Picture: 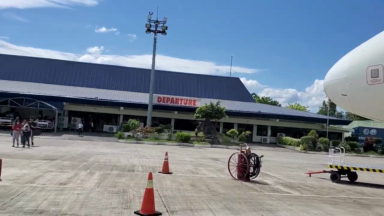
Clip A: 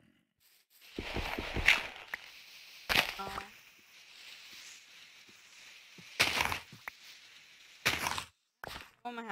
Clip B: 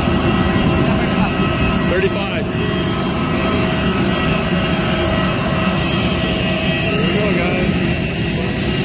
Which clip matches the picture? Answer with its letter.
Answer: B